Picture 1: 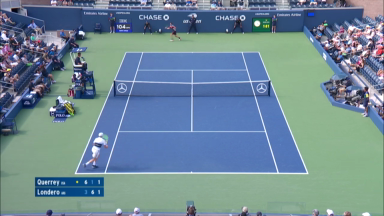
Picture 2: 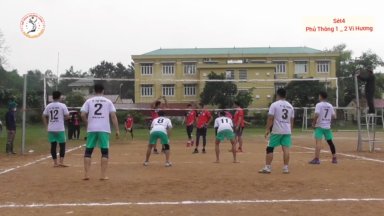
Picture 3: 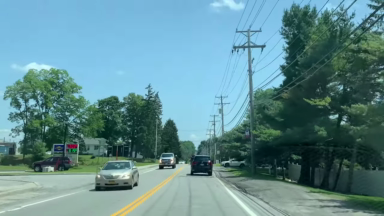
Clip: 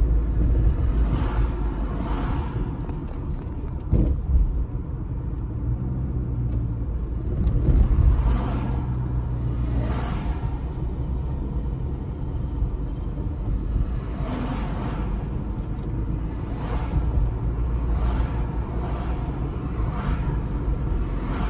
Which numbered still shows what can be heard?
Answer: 3